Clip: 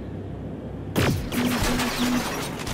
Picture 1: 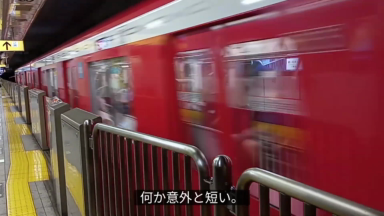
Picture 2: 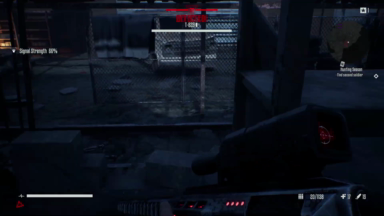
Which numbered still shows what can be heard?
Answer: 2